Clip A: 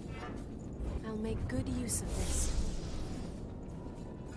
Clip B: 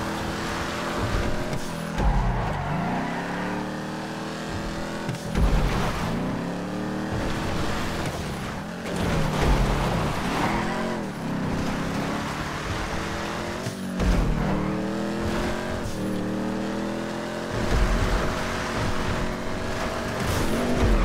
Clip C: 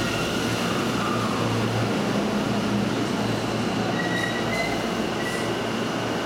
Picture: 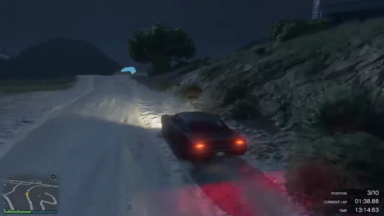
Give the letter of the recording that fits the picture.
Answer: B